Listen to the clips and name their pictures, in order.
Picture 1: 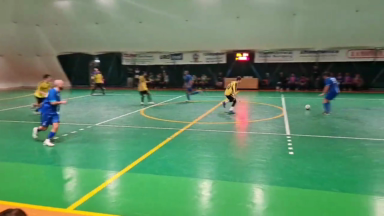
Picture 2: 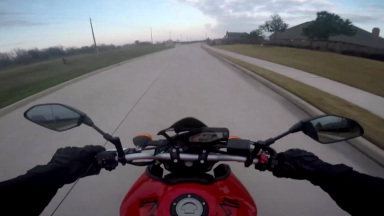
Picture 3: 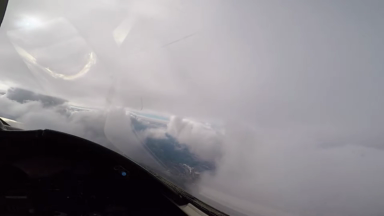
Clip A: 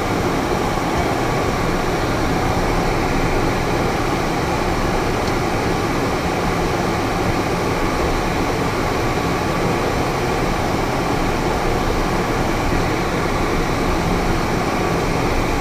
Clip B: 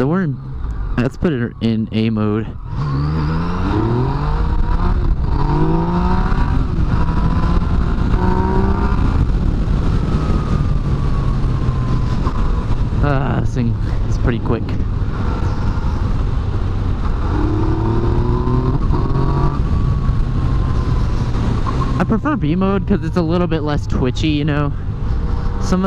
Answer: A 3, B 2